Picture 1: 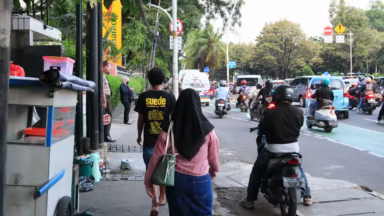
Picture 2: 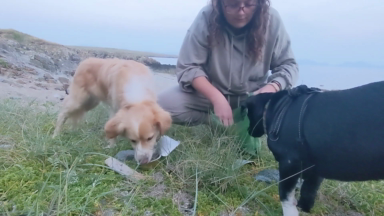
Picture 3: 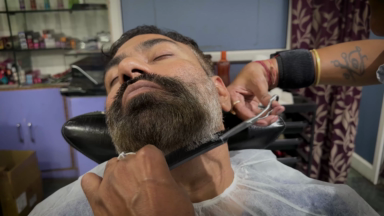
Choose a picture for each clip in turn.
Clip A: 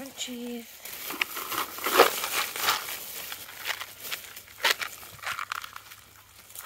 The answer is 2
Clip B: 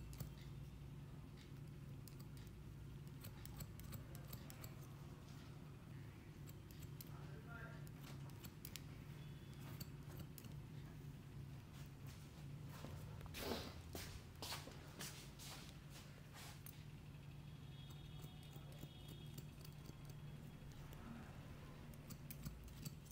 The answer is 3